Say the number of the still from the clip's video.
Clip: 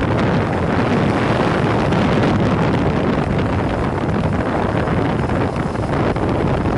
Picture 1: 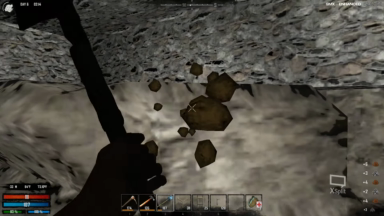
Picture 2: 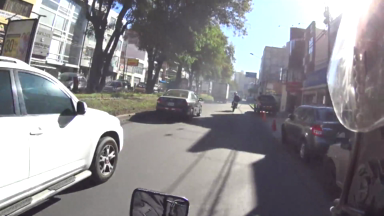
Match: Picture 2